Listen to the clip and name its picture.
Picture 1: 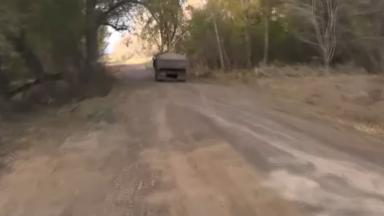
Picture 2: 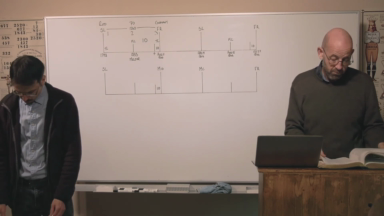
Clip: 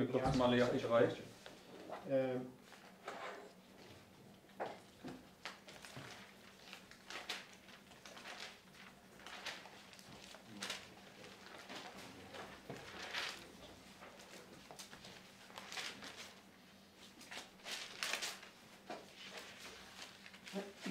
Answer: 2